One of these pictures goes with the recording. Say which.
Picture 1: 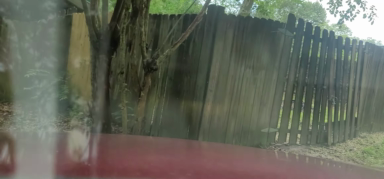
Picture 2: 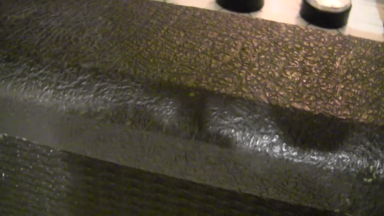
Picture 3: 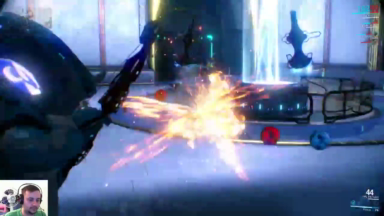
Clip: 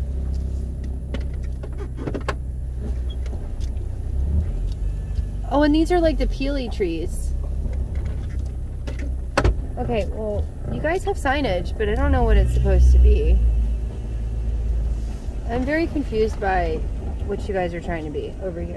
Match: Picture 1